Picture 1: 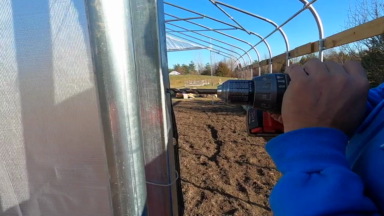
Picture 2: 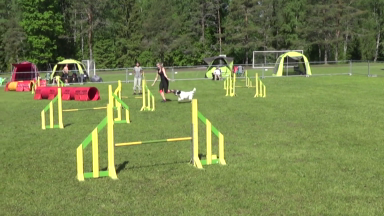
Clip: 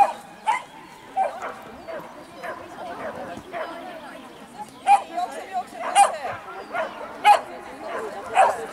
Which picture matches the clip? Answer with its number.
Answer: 2